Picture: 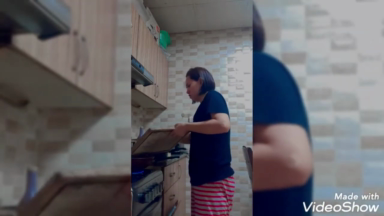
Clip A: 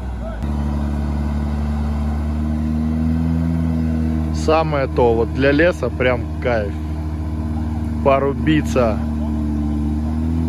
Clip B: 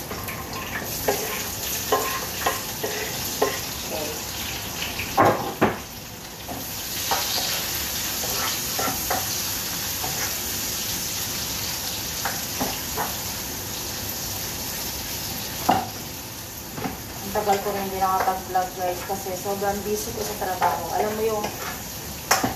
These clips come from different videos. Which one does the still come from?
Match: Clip B